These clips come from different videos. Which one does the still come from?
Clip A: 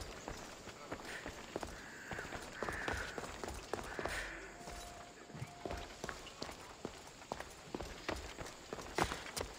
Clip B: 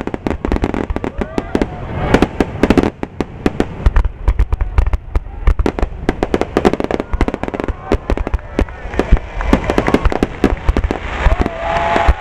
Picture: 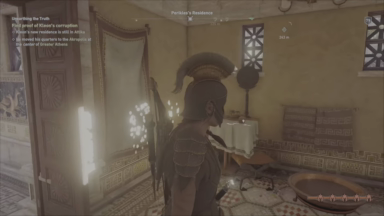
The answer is A